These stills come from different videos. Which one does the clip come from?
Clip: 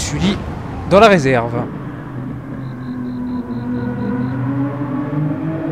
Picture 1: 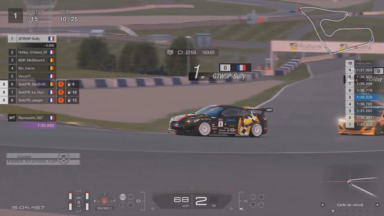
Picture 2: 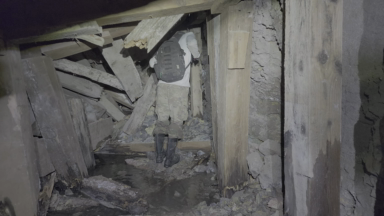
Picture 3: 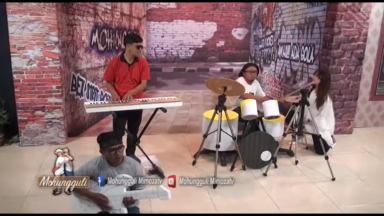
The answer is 1